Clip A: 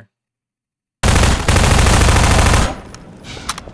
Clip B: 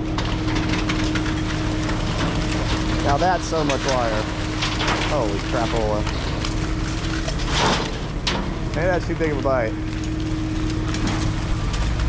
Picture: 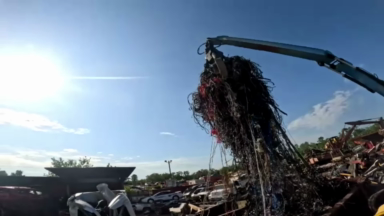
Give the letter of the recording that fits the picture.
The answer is B